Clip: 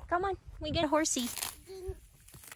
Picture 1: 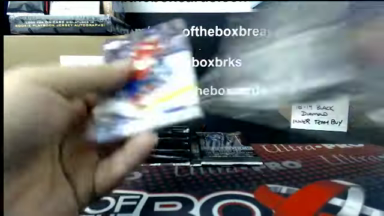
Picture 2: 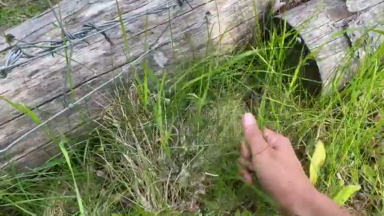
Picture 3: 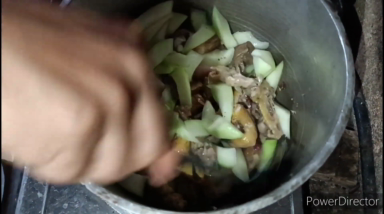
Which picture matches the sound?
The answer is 2